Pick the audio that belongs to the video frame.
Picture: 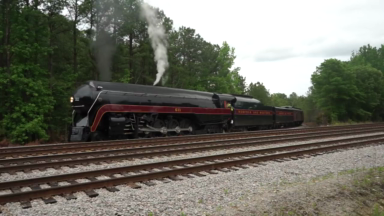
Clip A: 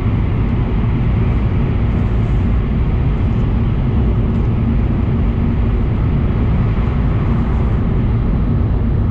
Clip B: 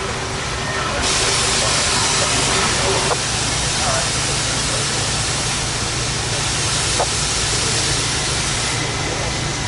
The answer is B